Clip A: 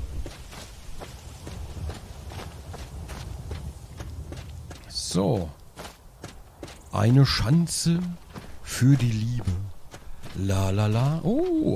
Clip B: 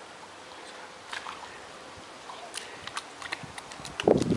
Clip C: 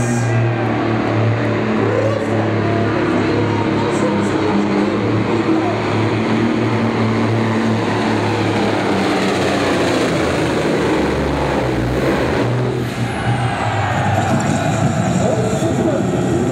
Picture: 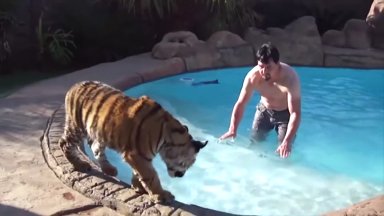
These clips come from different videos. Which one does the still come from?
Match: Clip B